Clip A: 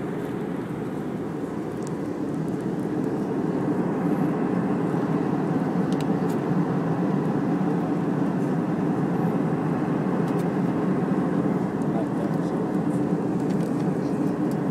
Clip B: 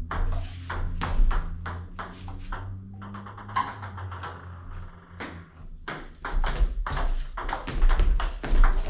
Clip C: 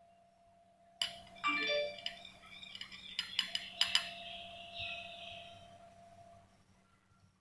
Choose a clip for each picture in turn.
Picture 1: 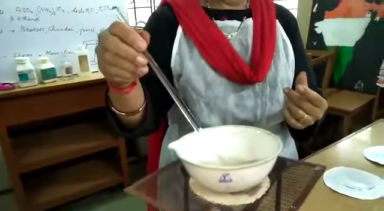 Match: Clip C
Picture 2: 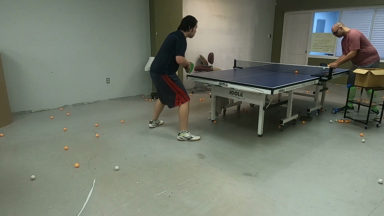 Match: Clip B